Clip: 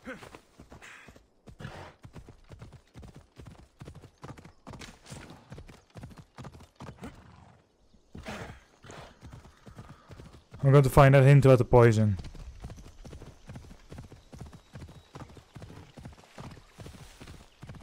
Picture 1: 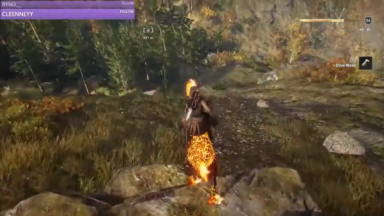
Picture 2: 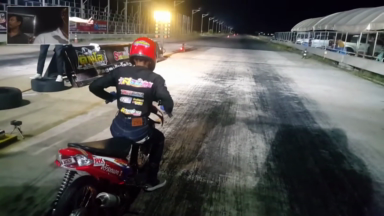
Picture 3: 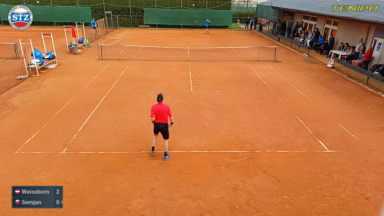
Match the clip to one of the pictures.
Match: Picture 1